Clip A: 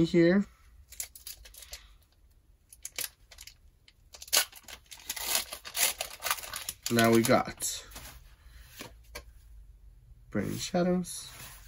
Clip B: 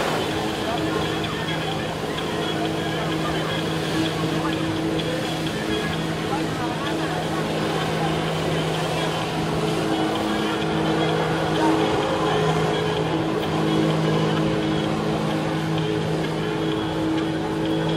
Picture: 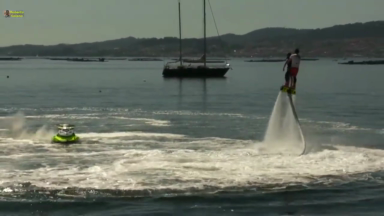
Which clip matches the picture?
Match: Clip B